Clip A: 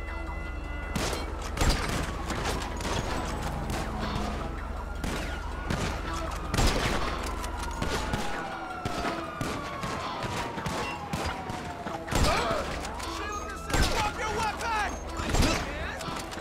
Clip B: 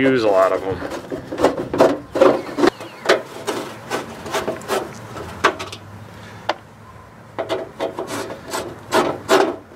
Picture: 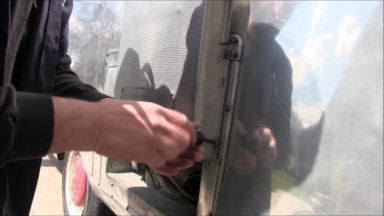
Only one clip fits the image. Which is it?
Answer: B